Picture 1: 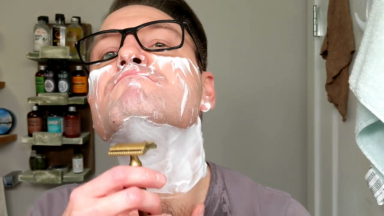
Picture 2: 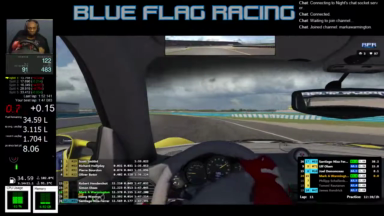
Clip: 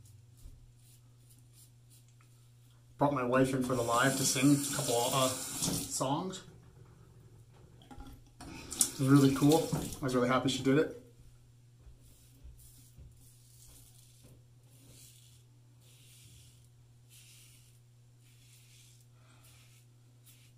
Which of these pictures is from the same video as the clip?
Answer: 1